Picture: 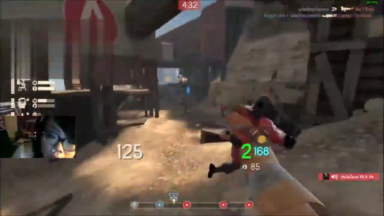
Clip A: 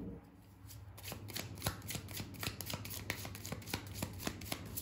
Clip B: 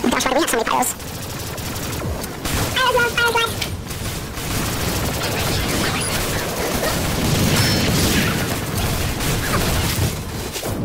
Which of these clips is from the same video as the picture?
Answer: B